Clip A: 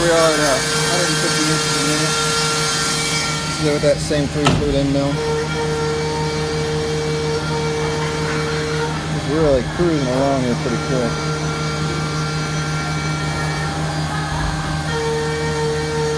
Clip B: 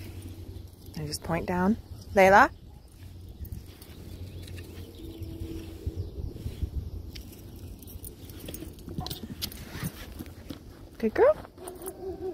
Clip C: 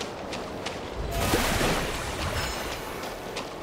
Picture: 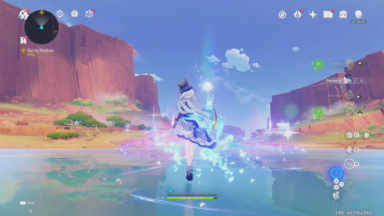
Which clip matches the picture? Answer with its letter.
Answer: C